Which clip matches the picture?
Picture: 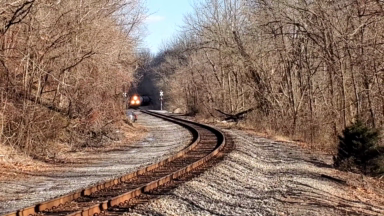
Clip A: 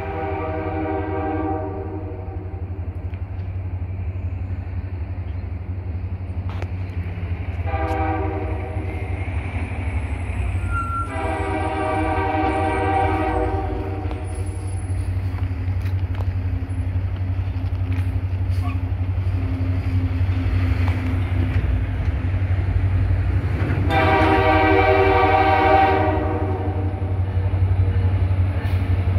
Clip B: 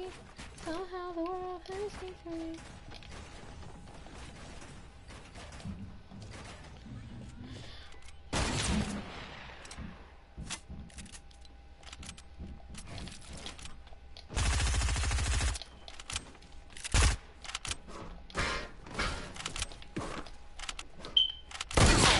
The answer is A